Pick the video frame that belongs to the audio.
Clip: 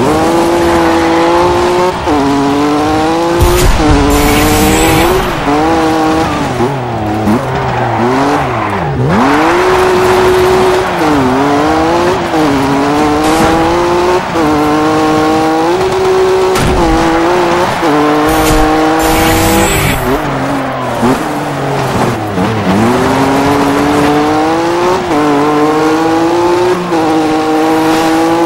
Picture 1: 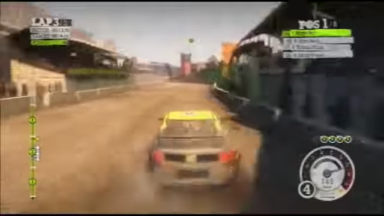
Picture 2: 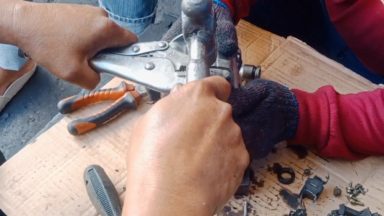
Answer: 1